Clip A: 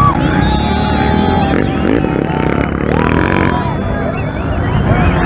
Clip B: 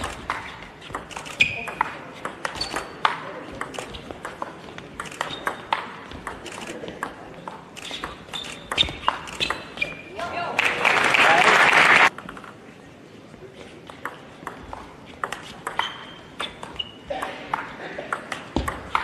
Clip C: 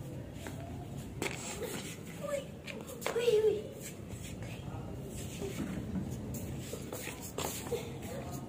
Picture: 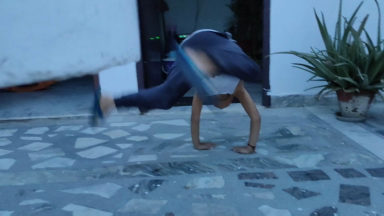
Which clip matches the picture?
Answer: C